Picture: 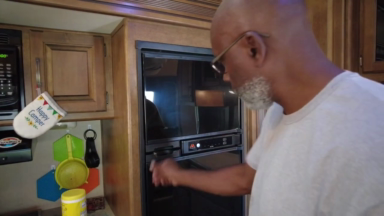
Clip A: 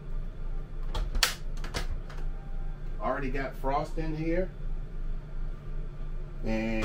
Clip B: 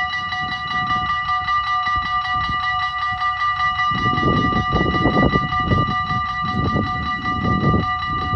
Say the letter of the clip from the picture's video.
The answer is A